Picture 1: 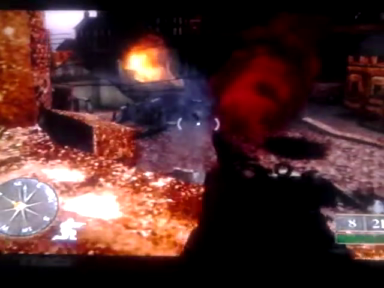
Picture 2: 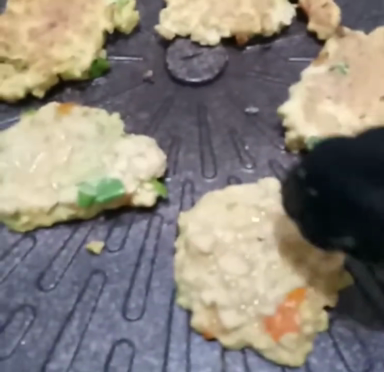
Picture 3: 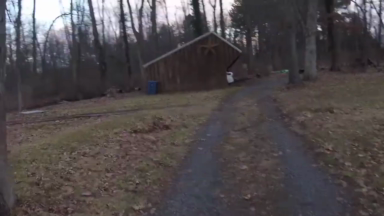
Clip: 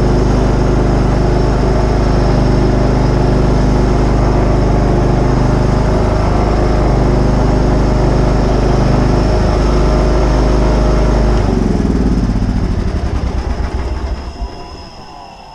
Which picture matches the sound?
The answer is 3